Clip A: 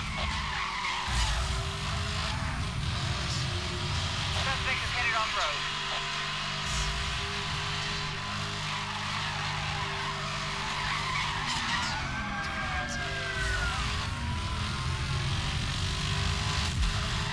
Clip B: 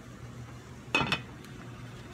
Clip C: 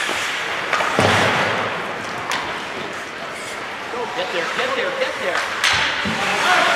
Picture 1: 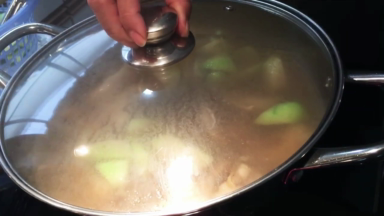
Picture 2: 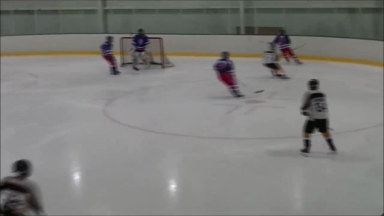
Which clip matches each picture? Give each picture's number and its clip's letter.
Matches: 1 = B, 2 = C